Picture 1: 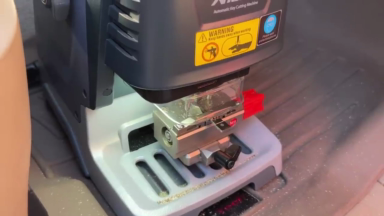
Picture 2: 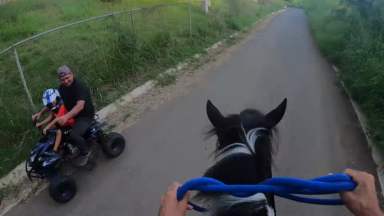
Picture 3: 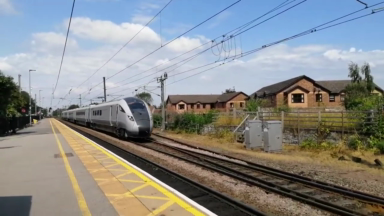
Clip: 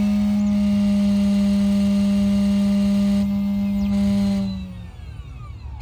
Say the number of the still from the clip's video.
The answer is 1